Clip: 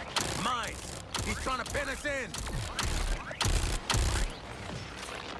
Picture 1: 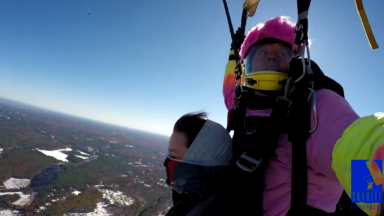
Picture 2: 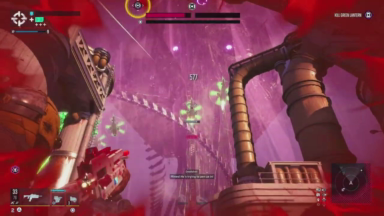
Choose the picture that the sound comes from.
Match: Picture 2